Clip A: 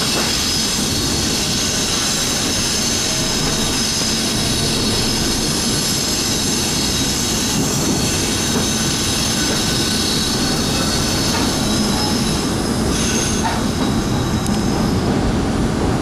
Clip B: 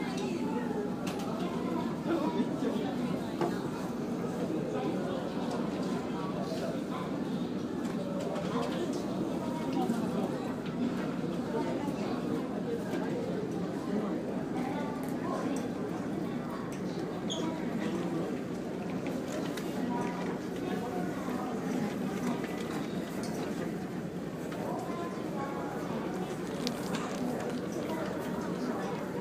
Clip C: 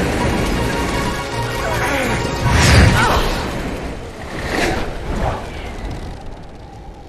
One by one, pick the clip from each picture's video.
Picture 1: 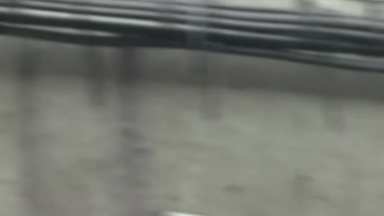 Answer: A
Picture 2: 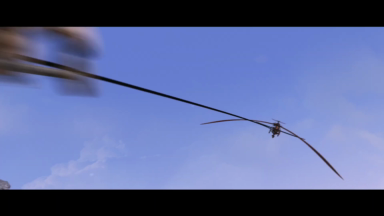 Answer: C